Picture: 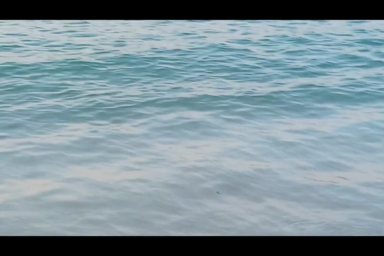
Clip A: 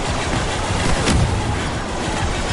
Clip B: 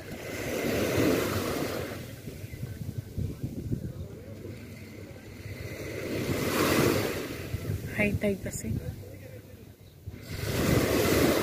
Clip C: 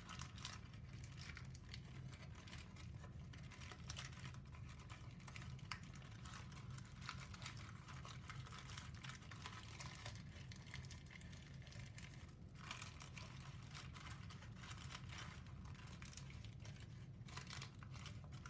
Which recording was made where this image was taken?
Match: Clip B